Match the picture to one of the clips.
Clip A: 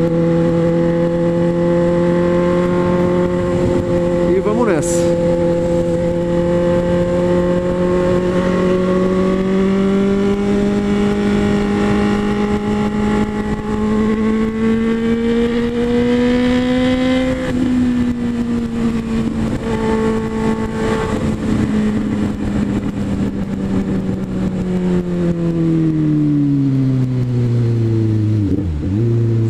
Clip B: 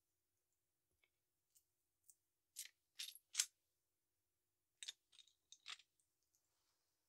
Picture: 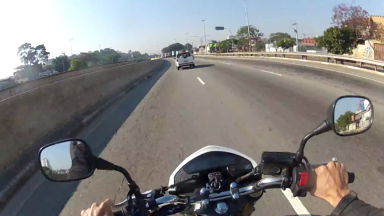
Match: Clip A